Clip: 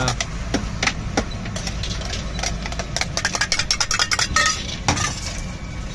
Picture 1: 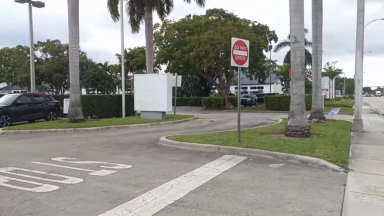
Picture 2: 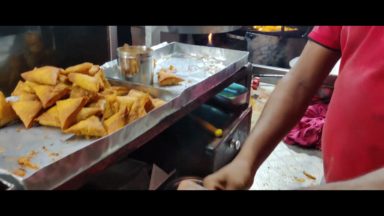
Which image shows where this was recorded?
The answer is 2